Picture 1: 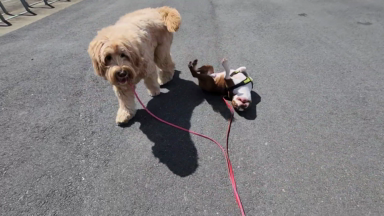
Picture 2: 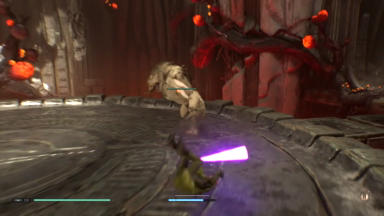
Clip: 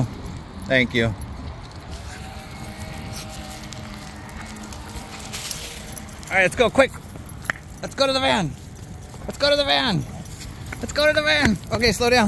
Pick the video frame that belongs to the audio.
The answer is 1